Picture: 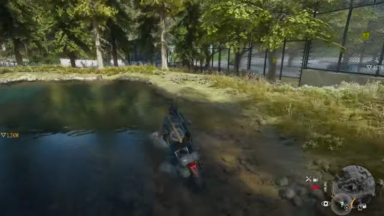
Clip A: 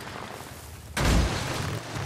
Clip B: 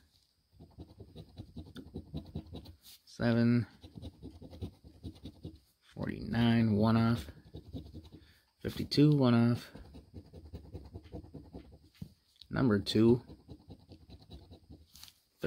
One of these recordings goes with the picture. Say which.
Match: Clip A